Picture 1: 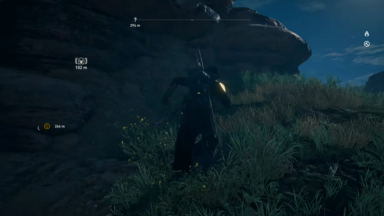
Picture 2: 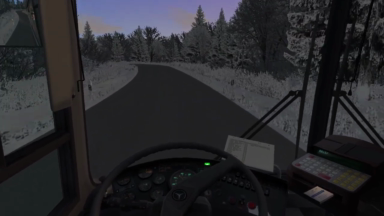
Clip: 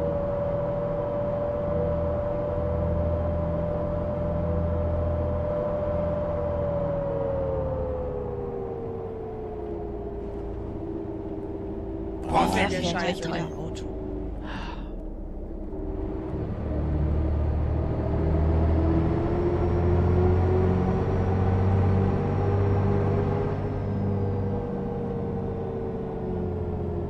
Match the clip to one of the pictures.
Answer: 2